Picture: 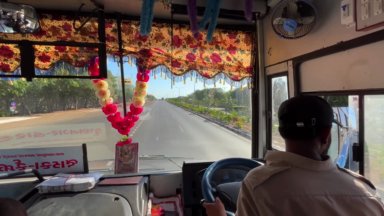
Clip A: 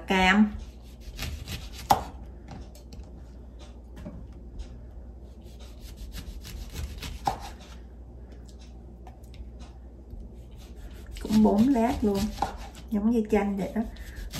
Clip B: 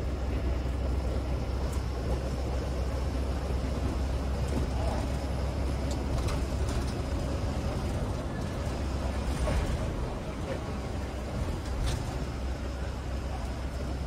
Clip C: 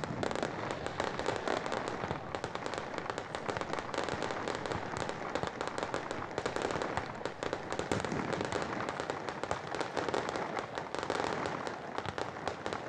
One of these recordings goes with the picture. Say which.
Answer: B